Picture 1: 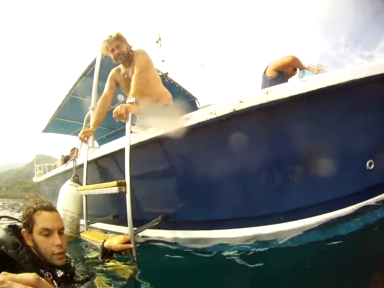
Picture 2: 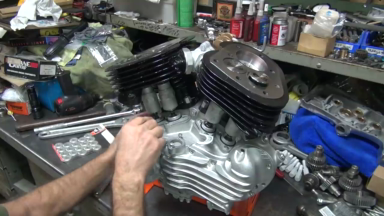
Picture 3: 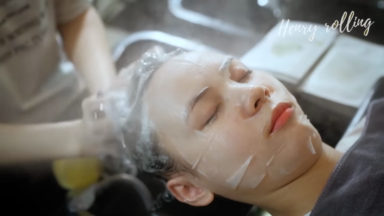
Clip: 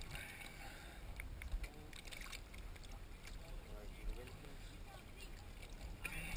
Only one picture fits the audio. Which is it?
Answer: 1